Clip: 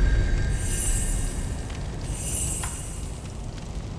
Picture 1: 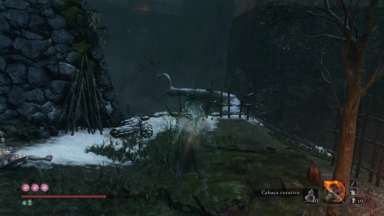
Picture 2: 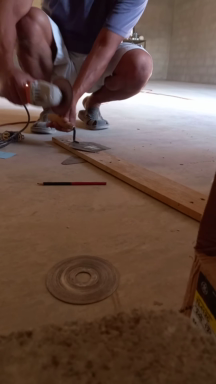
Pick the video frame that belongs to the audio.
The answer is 1